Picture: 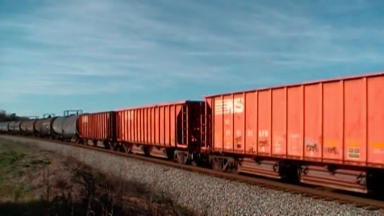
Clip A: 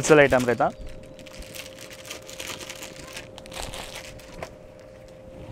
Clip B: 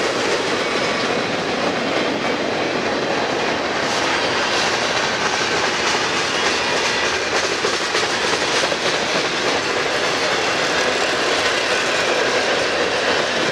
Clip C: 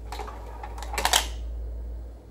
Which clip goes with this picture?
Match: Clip B